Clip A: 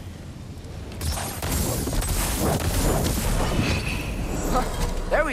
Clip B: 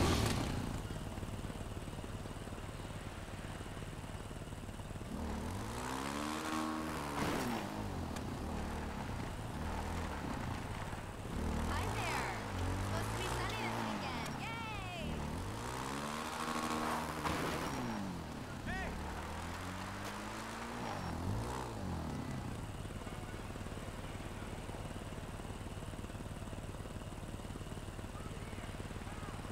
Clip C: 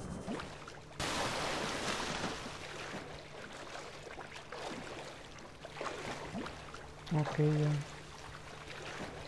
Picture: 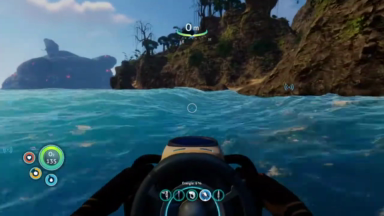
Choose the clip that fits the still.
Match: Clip C